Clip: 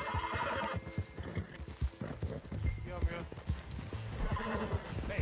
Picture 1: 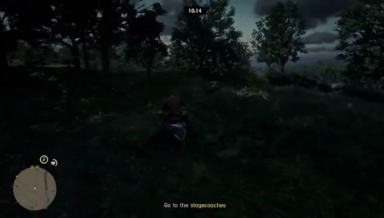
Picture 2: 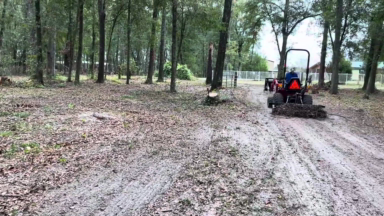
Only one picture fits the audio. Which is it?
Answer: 1